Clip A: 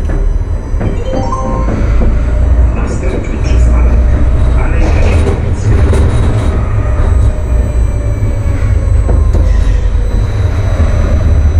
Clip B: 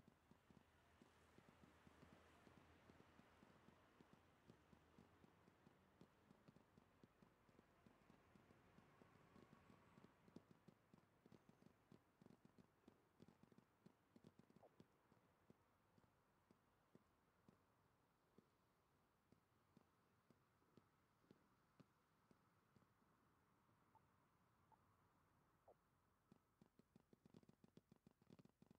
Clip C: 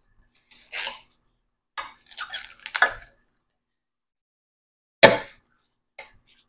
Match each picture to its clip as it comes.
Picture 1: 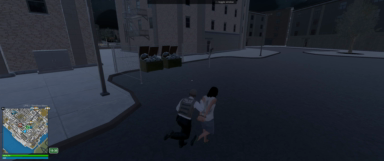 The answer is B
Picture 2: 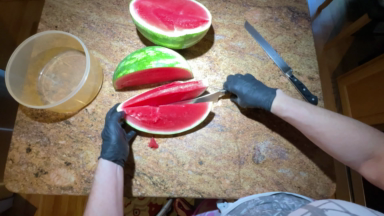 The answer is C